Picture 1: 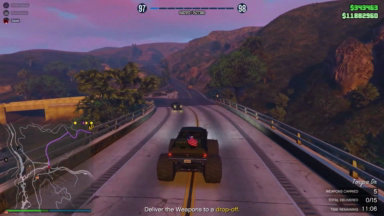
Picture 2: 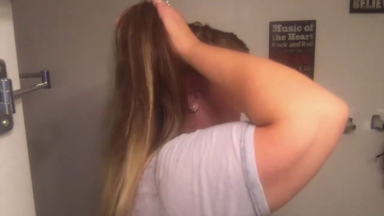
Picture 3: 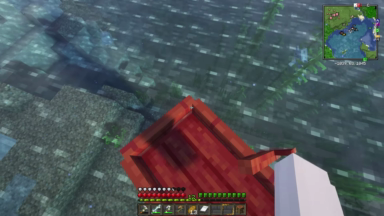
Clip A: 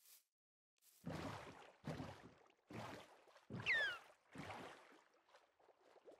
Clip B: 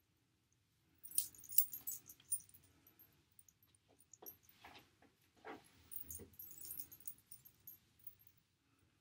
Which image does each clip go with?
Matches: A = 3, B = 2